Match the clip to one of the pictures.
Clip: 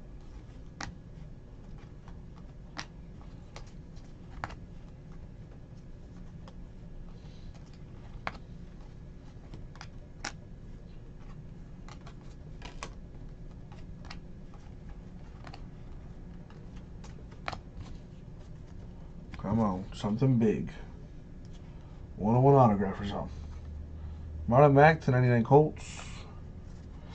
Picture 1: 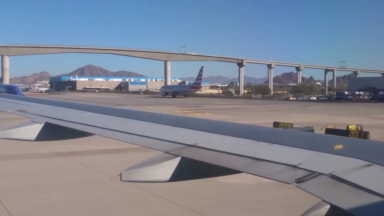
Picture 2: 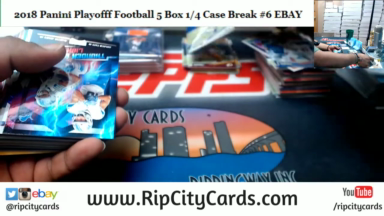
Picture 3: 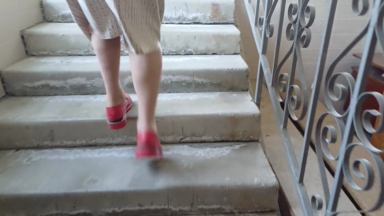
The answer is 2